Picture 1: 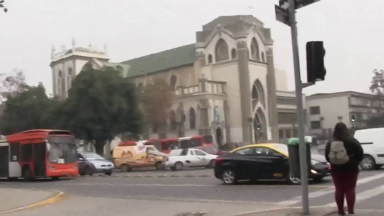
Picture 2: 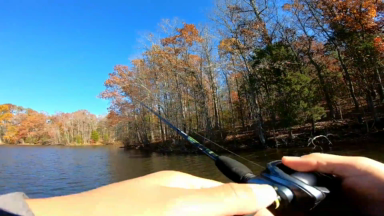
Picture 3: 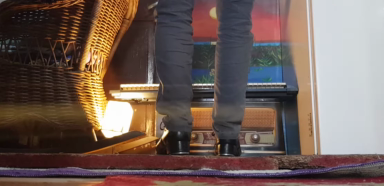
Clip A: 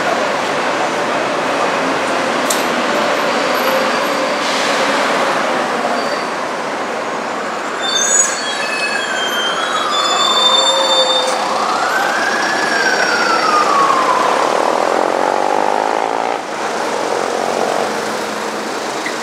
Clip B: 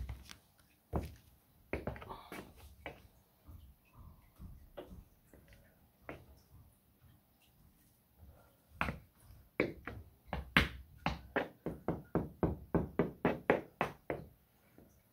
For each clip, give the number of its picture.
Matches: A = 1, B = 3